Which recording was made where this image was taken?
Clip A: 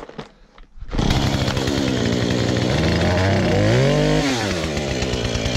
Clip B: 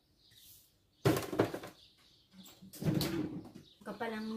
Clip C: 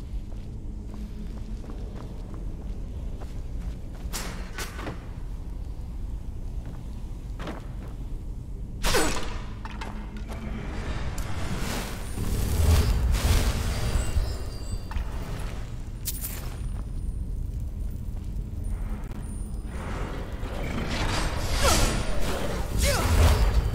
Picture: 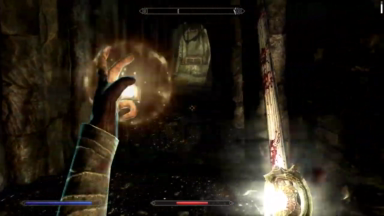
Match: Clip C